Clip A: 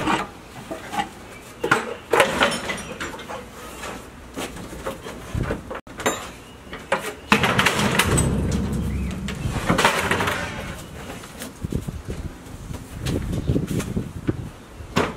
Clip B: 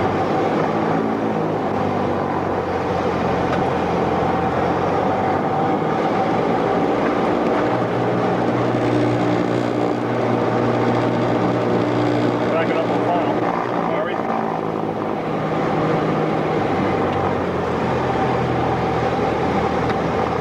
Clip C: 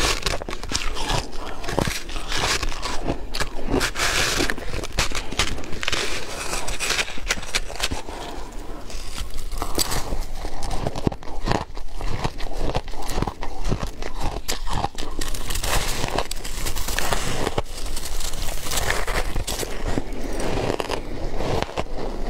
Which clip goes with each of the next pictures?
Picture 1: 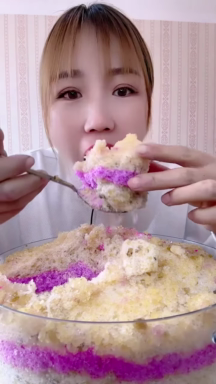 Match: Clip C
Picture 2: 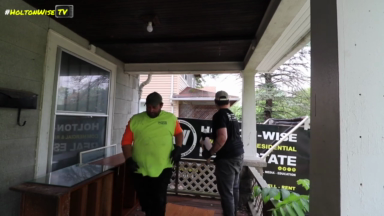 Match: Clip A